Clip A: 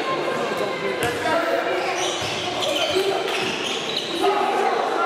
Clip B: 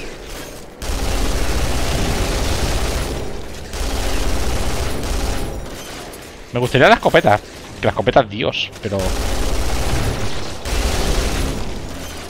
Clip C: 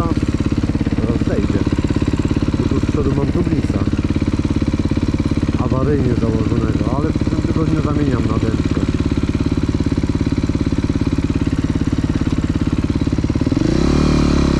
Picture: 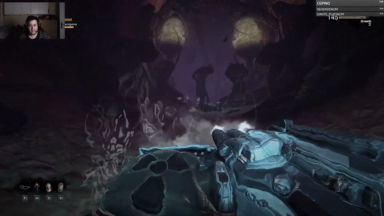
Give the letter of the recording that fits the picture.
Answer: B